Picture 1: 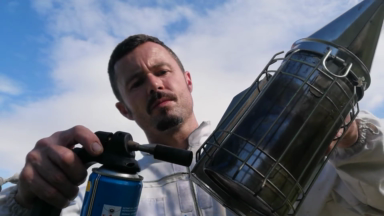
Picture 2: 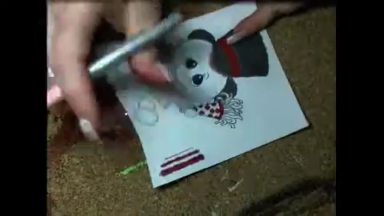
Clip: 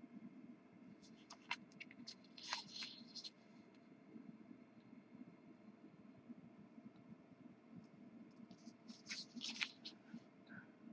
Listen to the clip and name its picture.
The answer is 2